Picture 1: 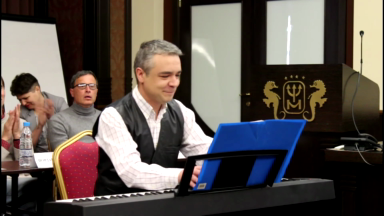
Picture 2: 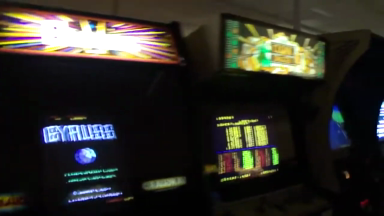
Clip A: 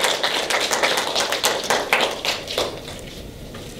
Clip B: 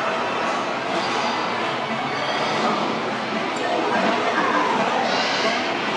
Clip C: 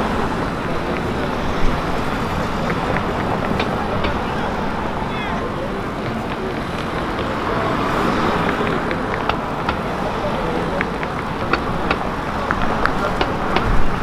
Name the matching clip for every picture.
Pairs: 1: A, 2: B